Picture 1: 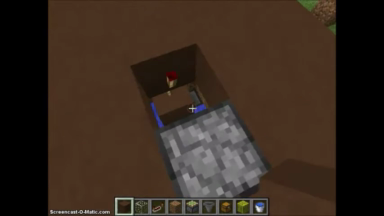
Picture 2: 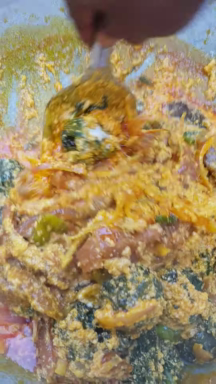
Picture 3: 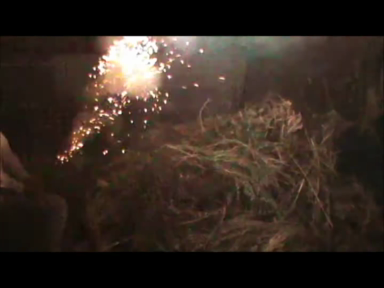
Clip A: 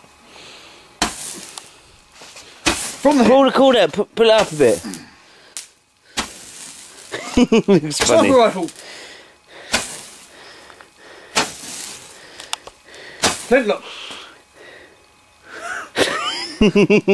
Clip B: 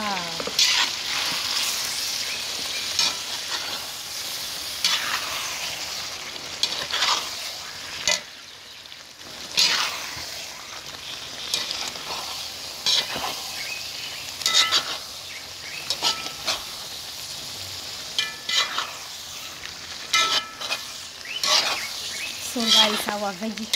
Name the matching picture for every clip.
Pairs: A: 3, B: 2